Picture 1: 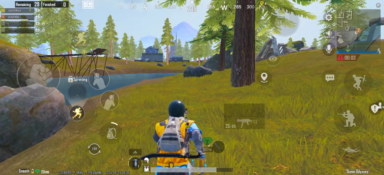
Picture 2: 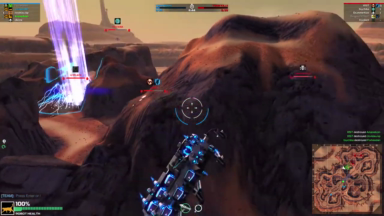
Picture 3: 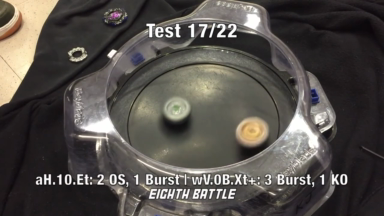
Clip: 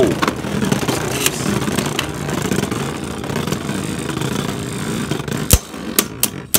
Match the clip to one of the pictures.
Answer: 3